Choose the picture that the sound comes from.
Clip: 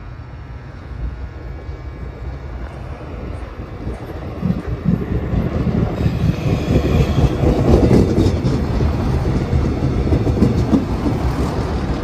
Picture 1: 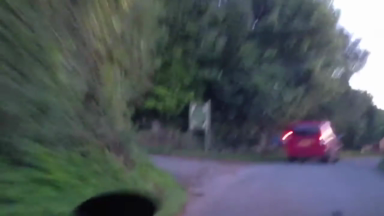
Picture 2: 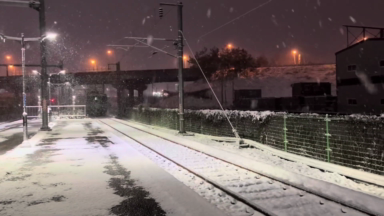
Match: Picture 2